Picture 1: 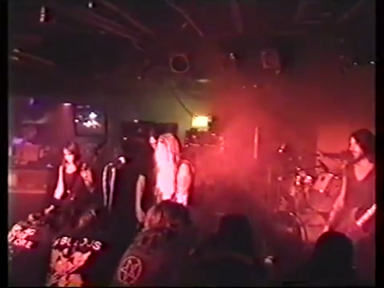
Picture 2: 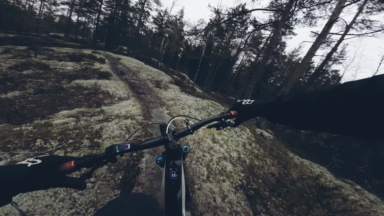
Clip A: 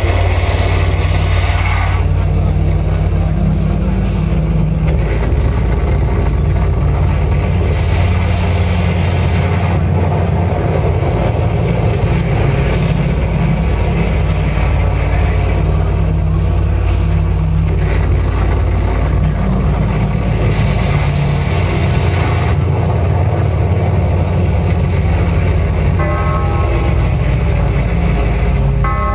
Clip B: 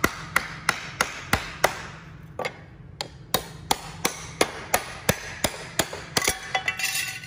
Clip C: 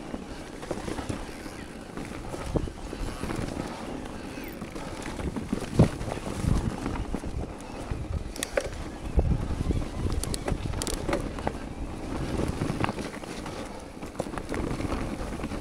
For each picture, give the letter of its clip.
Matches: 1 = A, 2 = C